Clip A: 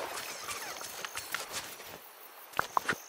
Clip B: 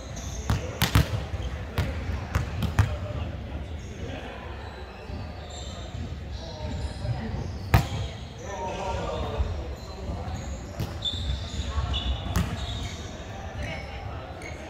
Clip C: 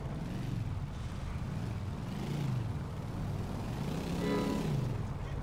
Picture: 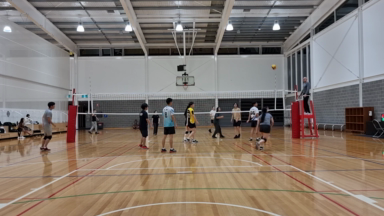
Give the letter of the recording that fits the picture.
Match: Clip B